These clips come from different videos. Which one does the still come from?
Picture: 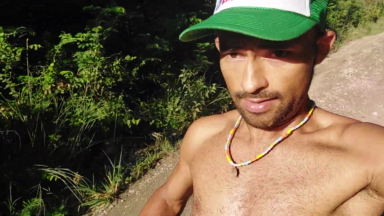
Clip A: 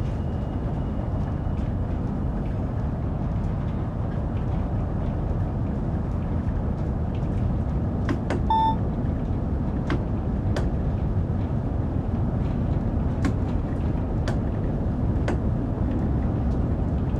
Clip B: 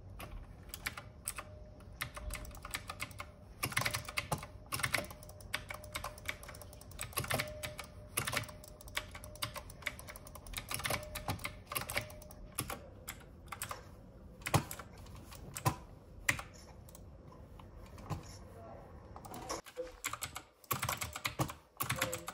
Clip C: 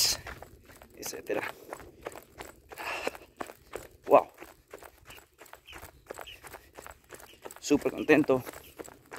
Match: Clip C